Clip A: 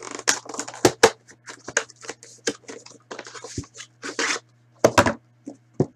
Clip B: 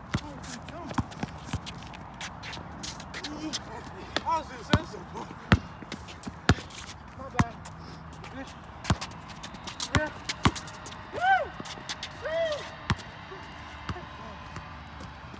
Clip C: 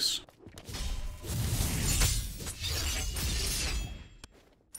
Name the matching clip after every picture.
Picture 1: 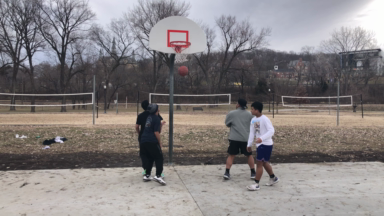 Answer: B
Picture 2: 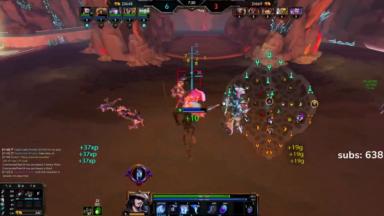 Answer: C